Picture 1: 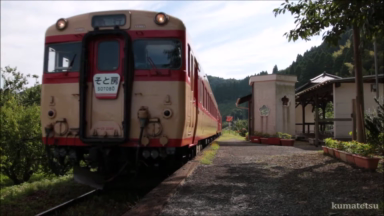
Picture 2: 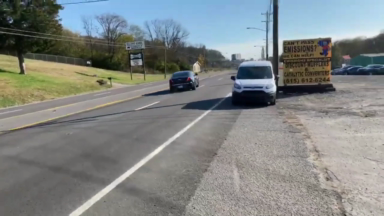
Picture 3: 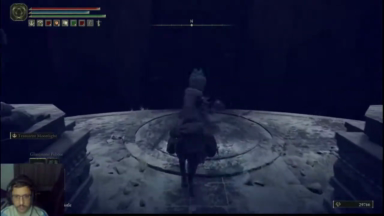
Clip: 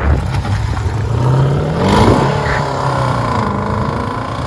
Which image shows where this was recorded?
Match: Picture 2